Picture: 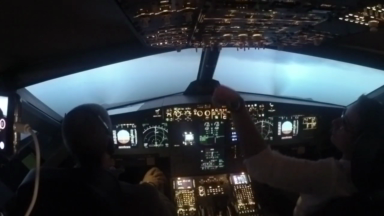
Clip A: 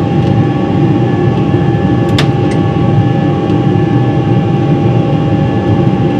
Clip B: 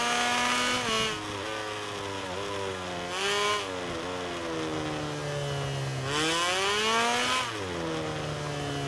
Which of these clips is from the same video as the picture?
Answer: A